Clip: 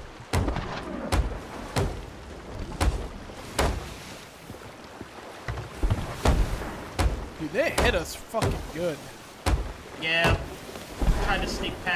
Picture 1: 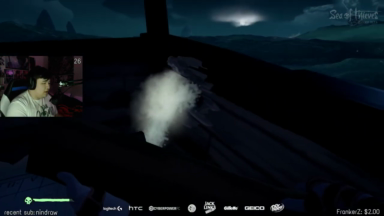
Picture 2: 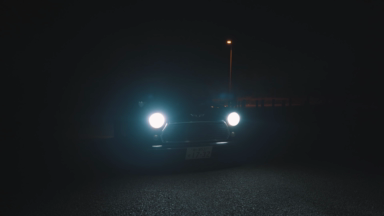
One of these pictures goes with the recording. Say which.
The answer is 1